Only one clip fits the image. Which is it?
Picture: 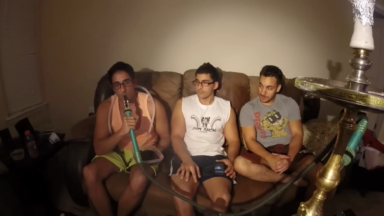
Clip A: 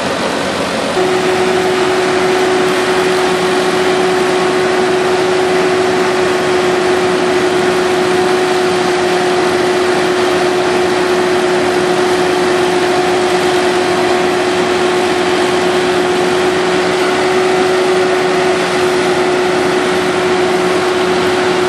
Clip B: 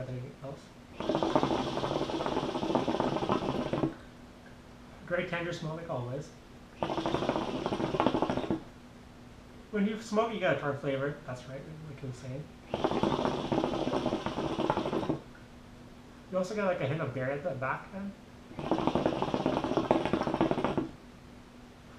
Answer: B